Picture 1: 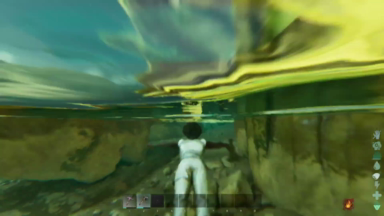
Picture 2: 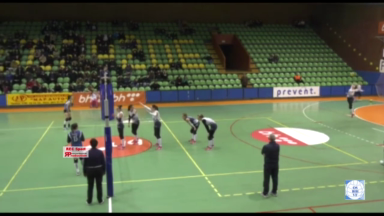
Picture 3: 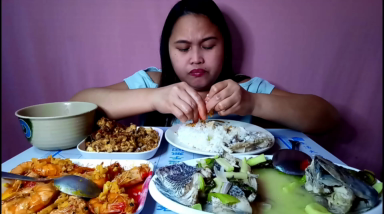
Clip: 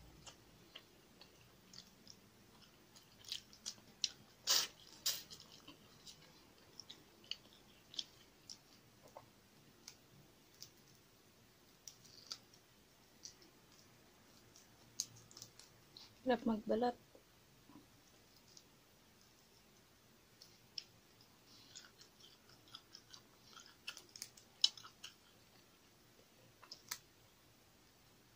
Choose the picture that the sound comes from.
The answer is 3